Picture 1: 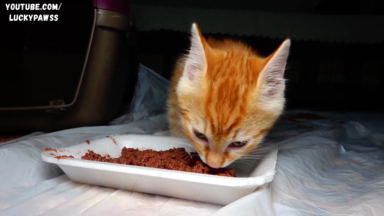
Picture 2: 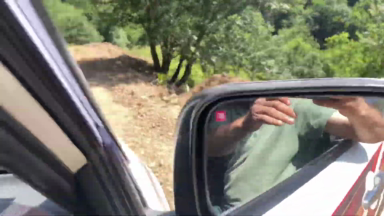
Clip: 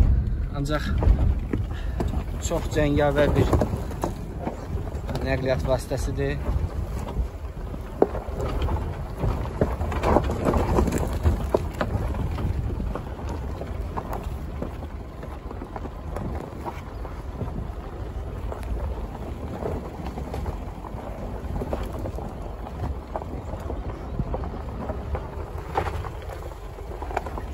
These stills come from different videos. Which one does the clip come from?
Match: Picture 2